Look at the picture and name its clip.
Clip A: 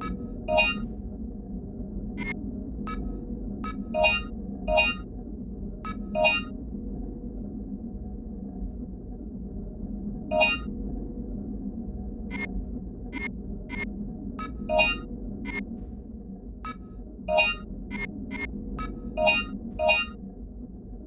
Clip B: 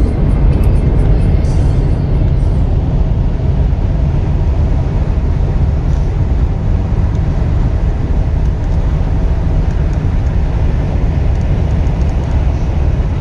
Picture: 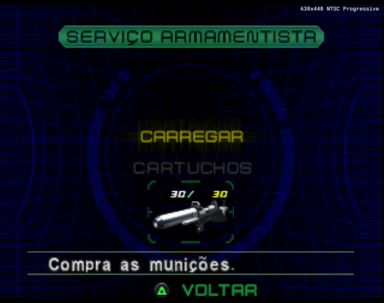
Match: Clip A